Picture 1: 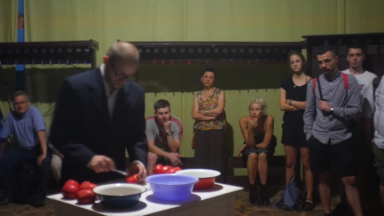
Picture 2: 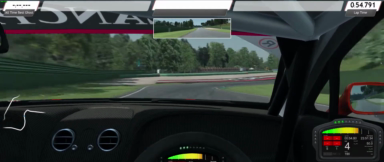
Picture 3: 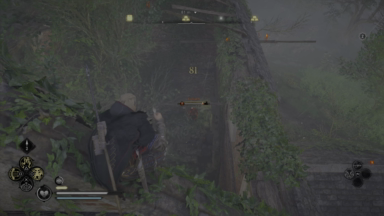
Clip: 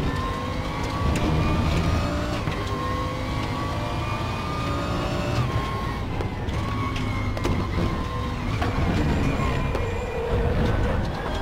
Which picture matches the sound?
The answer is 2